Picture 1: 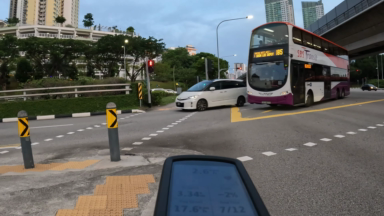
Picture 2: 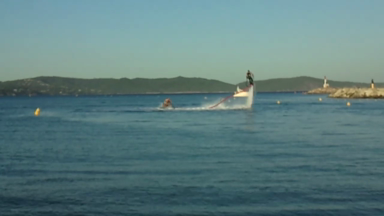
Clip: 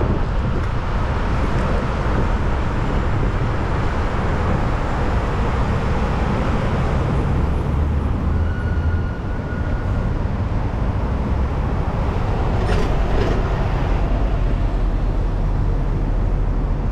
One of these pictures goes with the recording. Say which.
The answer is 1